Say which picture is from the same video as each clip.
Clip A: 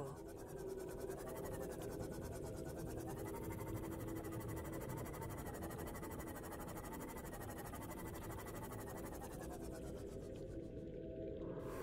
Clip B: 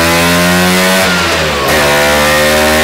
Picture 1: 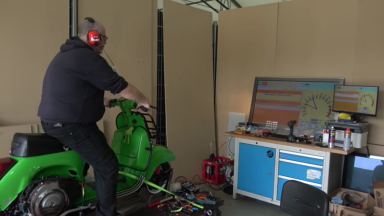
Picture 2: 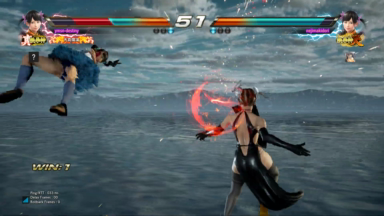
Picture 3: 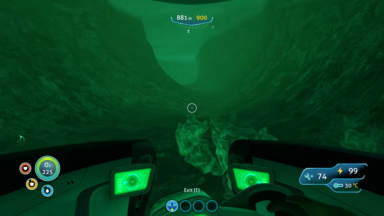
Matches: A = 3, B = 1